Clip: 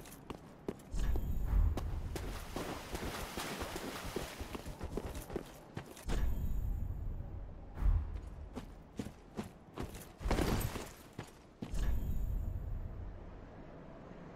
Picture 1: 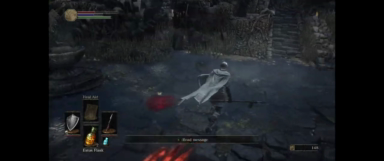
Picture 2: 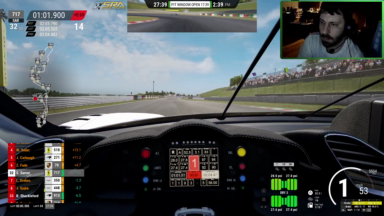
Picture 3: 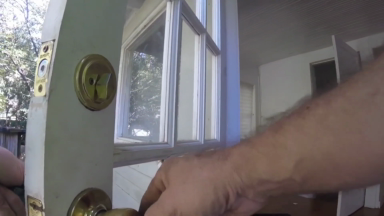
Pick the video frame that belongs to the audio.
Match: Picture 1